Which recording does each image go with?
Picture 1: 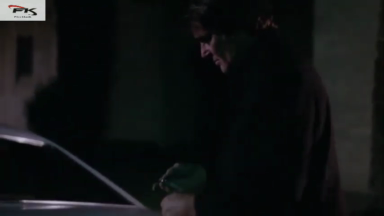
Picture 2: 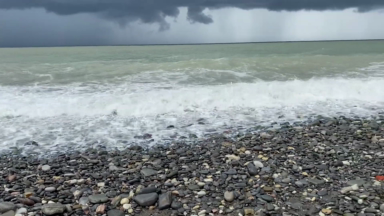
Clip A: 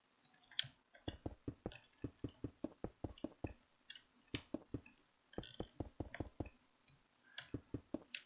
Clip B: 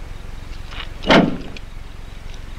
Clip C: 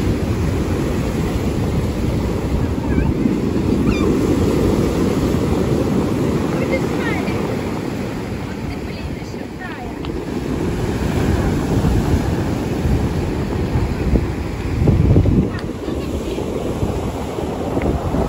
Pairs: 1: B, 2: C